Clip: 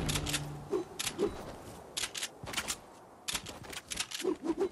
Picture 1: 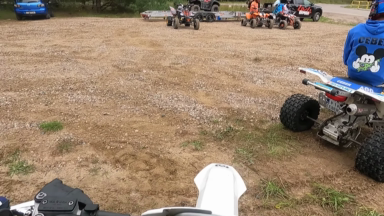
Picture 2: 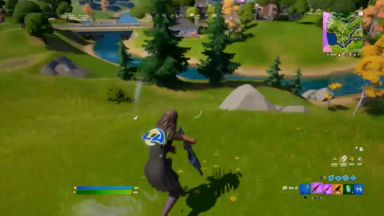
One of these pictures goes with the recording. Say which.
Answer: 2